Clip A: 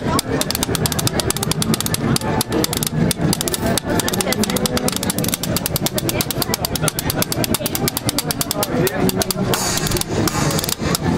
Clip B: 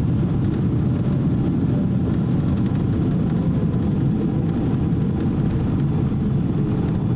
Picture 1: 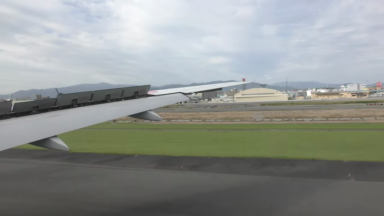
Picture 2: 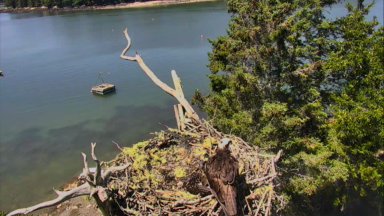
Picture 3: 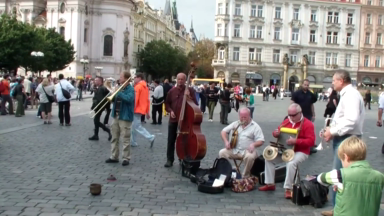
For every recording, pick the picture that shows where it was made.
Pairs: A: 3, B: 1